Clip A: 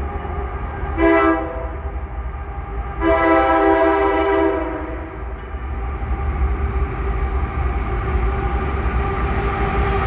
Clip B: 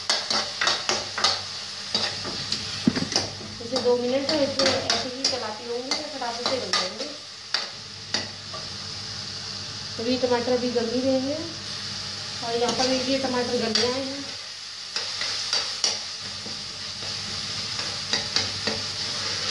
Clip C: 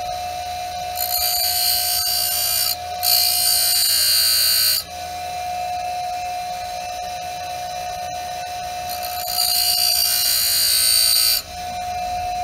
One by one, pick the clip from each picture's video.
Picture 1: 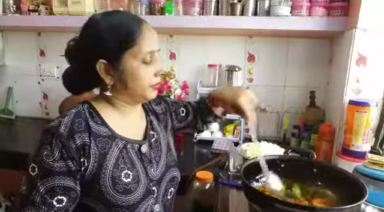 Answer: B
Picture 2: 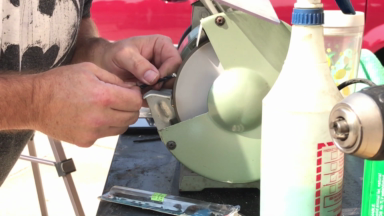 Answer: C